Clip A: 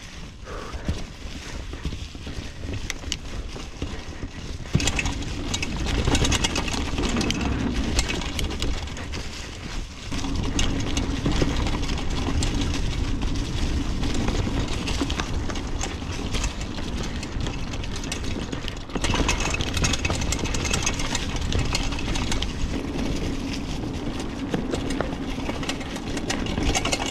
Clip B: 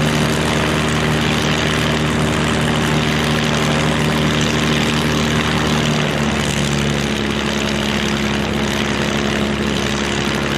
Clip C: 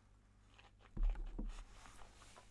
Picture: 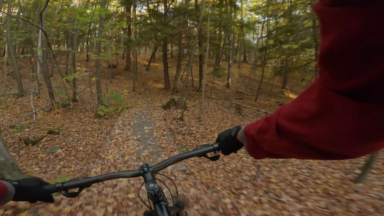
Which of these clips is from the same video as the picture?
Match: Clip A